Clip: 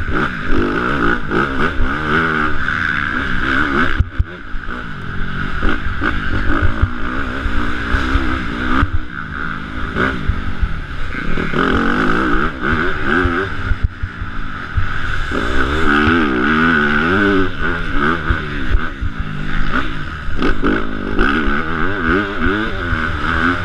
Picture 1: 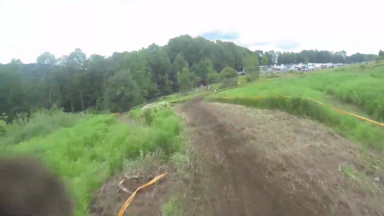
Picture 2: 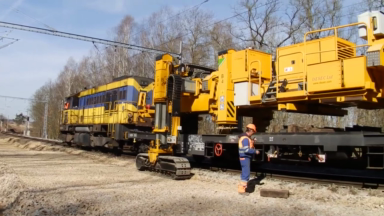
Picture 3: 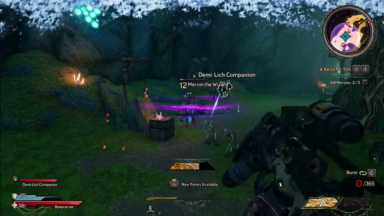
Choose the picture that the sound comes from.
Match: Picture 1